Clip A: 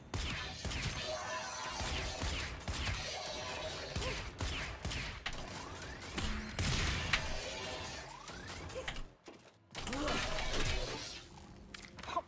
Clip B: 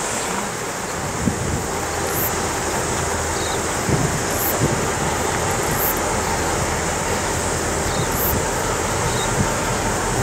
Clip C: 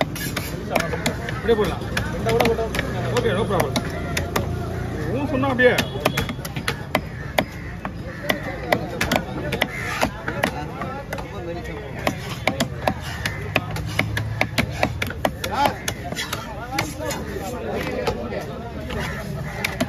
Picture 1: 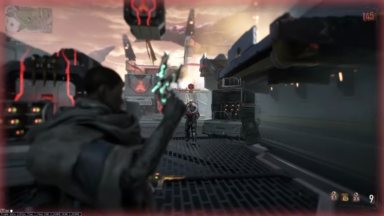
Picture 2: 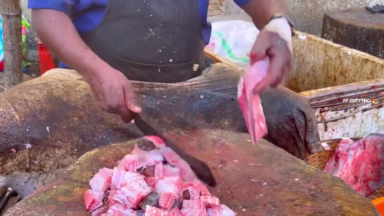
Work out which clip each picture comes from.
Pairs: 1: A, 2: C